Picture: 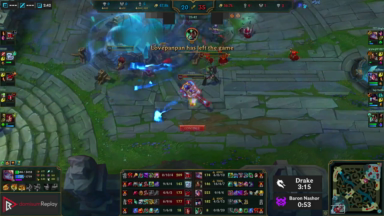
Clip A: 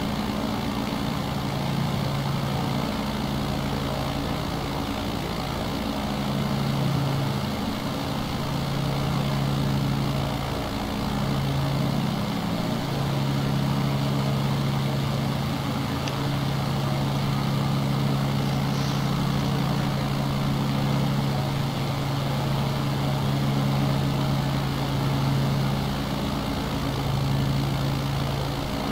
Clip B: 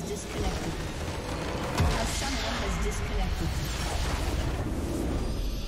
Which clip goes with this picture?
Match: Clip B